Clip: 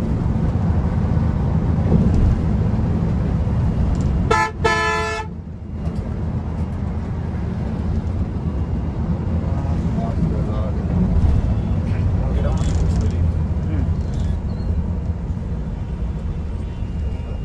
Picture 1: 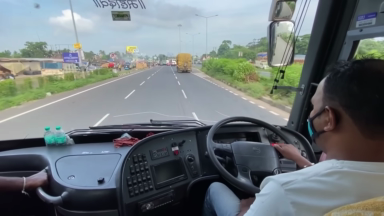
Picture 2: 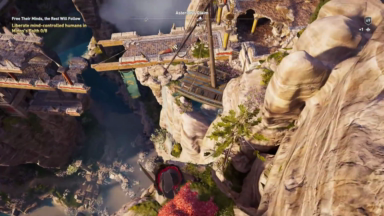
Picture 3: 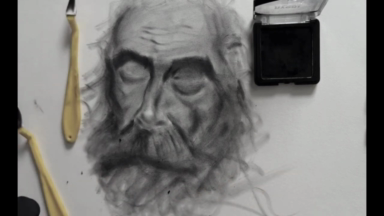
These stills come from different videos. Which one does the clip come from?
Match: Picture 1